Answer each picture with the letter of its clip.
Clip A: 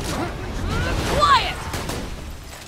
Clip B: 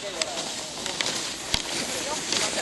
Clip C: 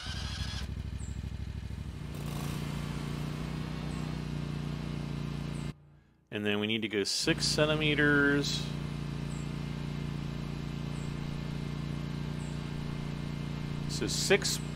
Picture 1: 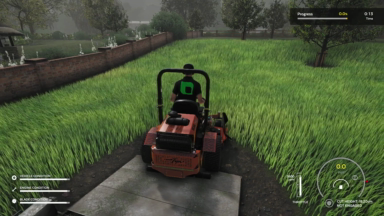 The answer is C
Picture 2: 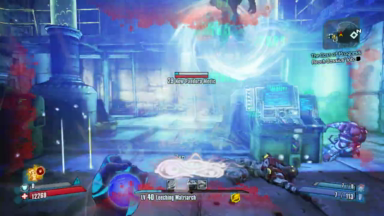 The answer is A